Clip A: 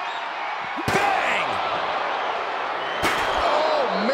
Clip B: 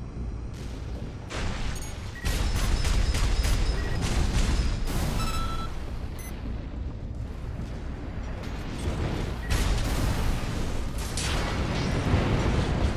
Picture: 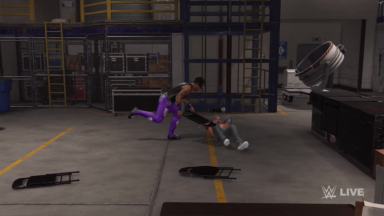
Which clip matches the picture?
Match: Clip A